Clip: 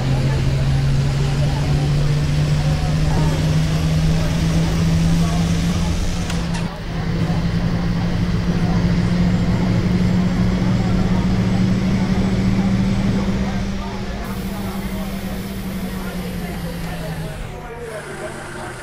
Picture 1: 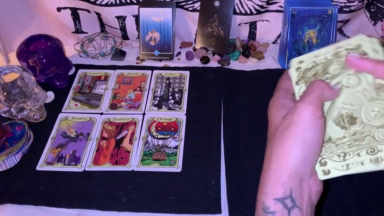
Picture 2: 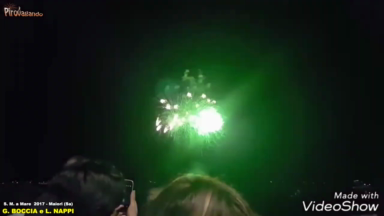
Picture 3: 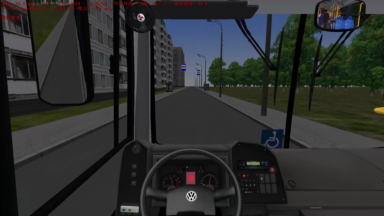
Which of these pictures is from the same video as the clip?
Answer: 3